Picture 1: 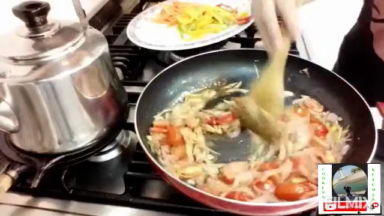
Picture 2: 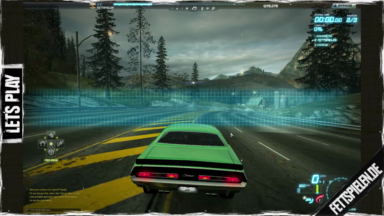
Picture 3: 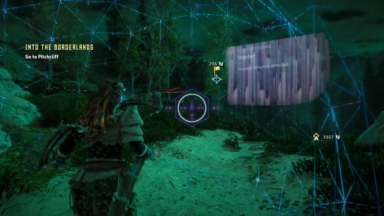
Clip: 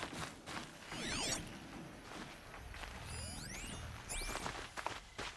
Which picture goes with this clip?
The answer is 3